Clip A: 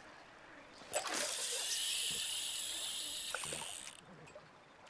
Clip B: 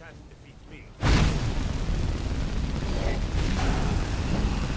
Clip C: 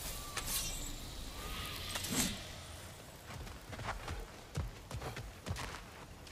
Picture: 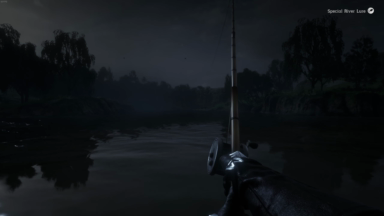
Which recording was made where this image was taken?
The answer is A